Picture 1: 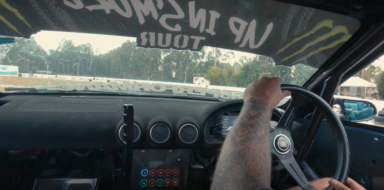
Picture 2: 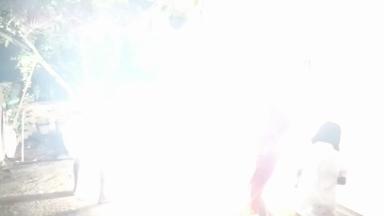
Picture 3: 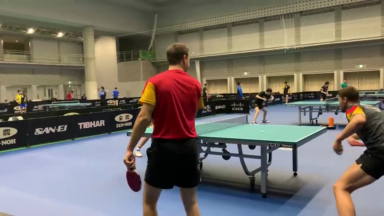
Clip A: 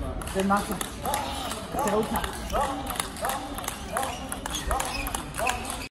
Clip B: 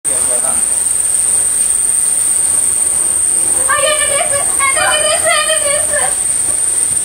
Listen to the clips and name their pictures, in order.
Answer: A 3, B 2